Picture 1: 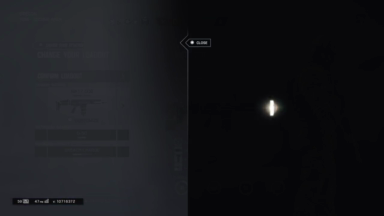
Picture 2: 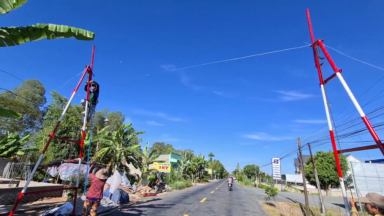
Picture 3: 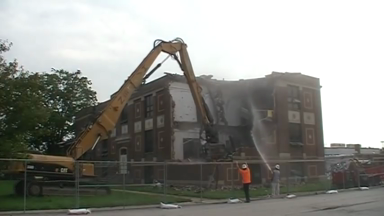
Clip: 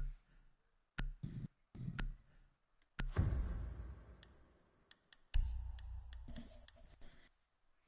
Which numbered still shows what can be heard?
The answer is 1